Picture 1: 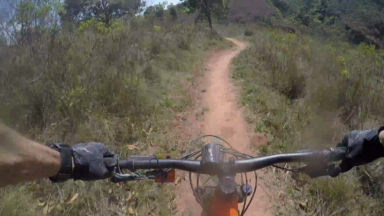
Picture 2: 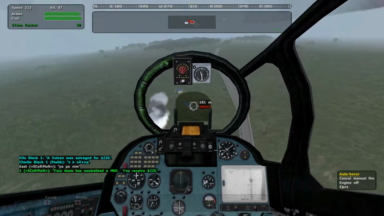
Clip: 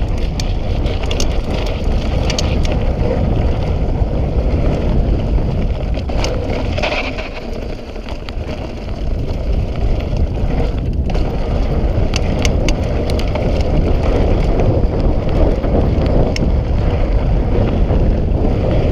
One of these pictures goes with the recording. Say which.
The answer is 1